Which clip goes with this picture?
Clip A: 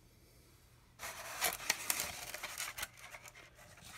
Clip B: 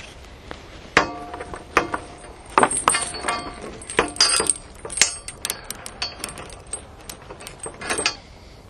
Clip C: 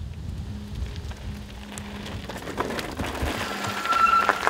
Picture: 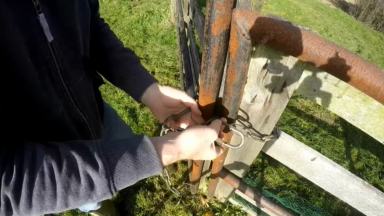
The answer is B